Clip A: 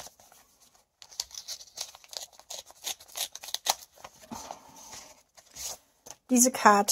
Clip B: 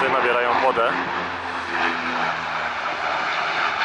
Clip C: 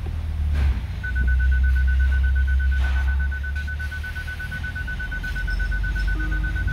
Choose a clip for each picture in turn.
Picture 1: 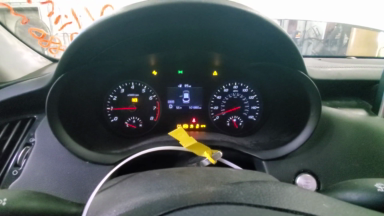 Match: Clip C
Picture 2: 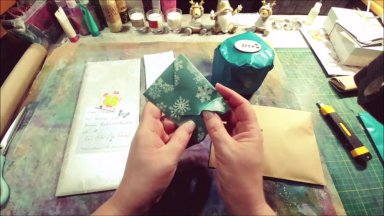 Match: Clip A